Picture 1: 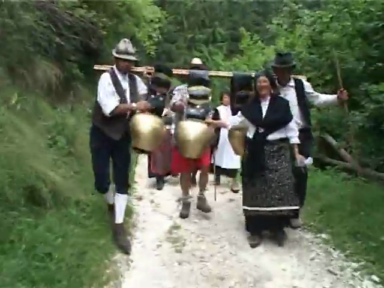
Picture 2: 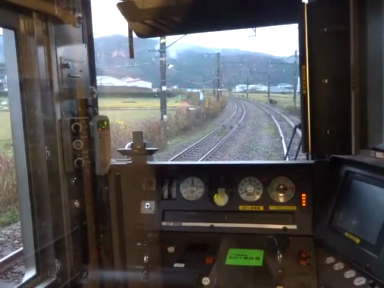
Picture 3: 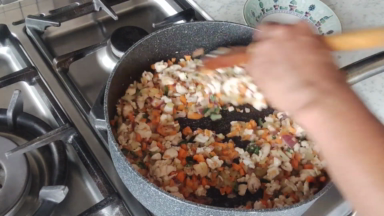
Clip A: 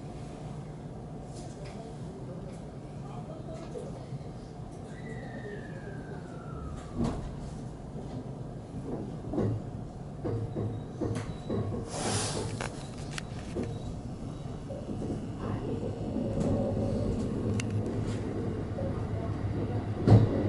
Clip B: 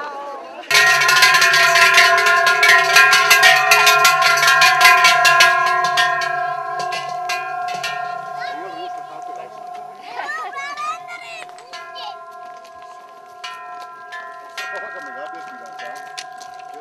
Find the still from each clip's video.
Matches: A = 2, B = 1